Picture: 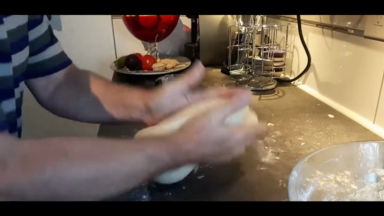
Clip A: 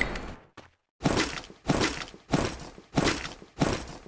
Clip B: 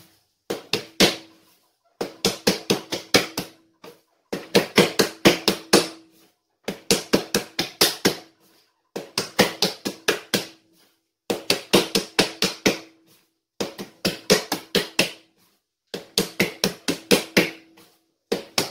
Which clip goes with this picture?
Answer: B